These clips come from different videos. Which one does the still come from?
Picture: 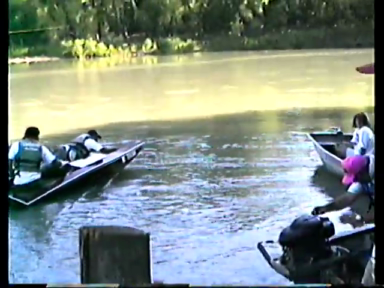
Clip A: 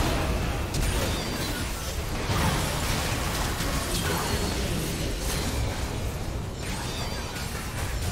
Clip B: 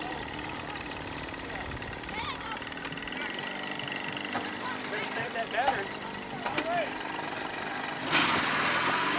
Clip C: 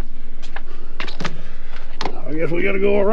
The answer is B